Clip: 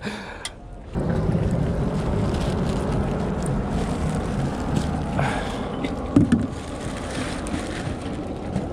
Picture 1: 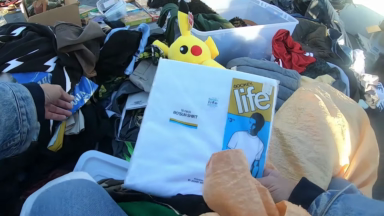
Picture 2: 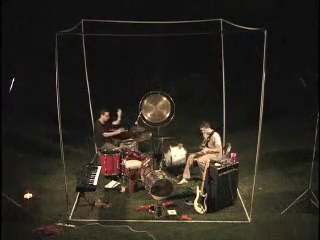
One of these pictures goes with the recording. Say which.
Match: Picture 1